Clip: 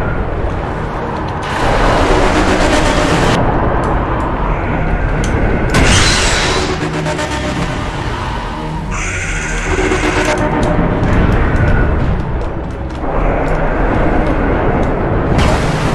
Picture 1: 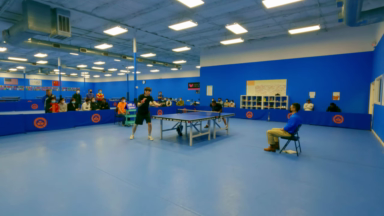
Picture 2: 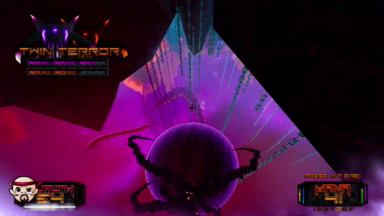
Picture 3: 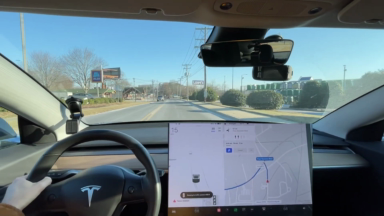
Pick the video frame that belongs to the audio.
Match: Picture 2